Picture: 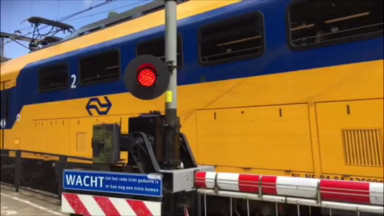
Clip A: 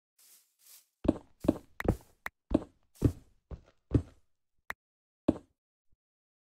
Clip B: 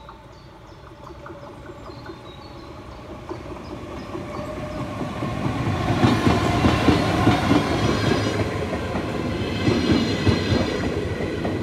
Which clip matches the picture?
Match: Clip B